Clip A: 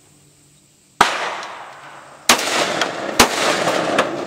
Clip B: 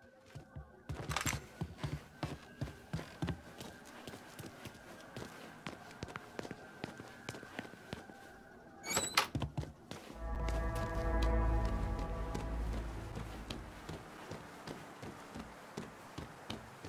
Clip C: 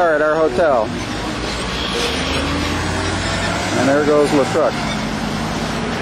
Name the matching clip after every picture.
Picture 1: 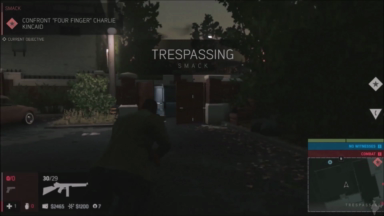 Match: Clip B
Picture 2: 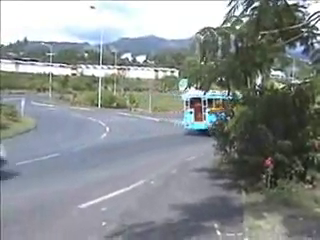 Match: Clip C